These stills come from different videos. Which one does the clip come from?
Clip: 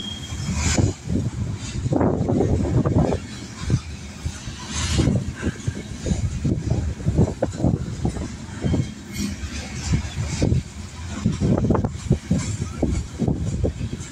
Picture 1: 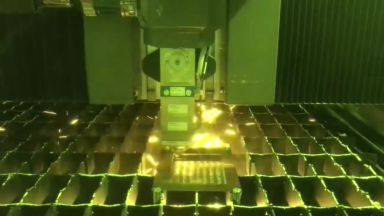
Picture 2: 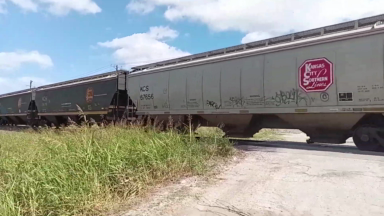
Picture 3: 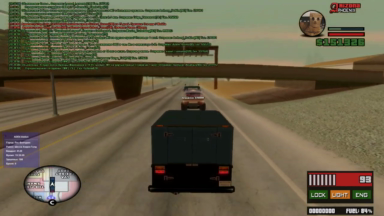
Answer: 2